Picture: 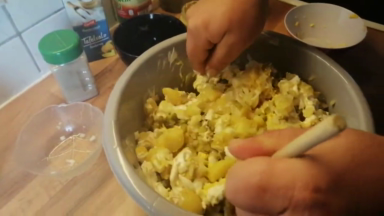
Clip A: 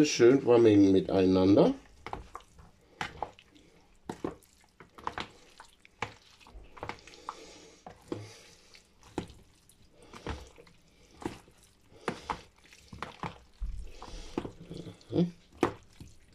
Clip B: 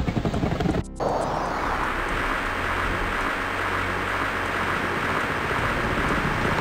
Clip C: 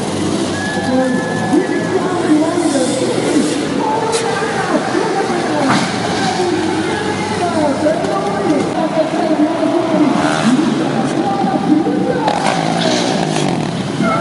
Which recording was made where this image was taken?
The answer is A